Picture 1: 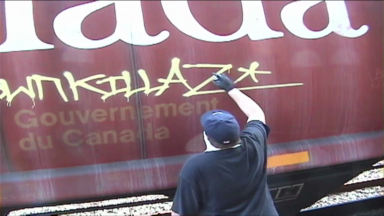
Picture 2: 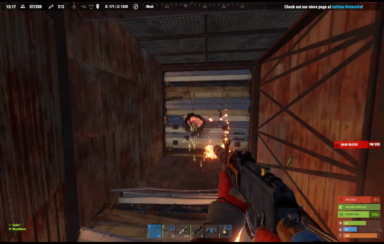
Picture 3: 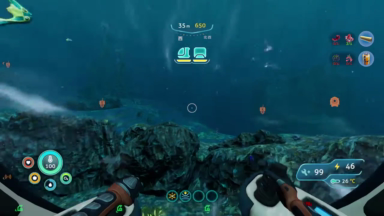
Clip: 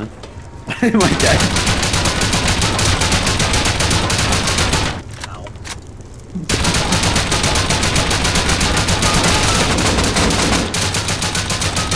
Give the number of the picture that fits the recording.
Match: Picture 2